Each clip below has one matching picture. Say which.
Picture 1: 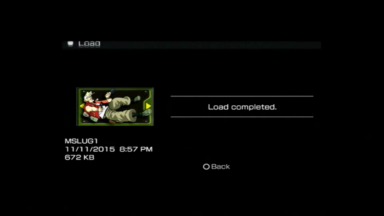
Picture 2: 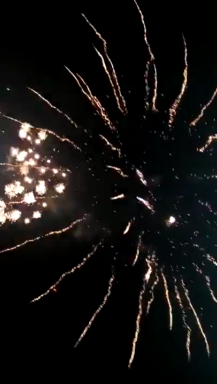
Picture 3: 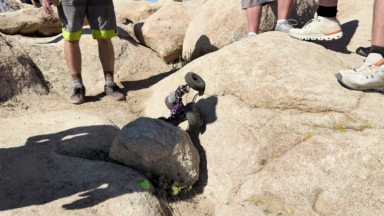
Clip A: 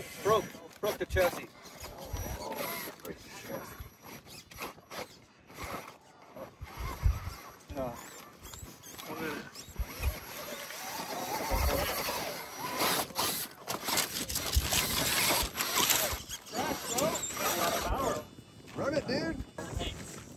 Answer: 3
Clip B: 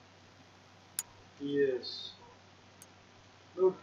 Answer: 1